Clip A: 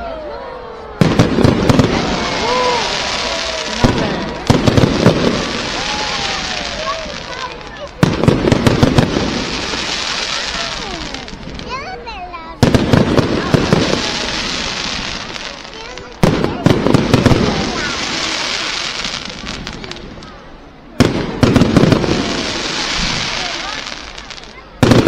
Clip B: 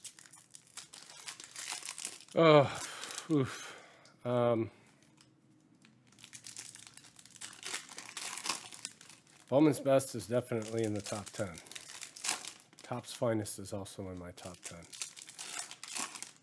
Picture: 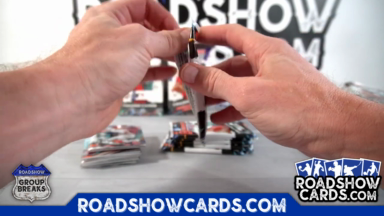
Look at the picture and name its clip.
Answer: B